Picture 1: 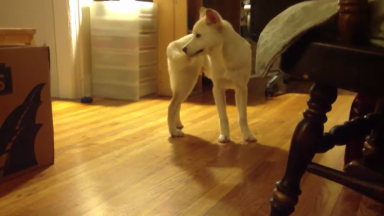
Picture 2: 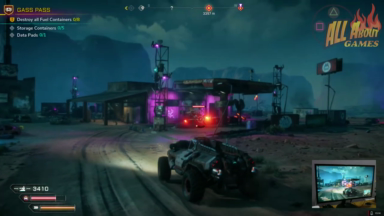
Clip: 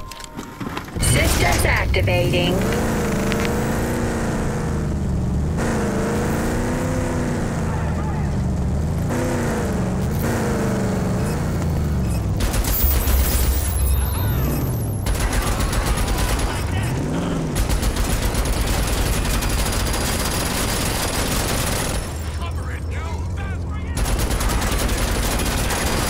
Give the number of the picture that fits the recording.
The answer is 2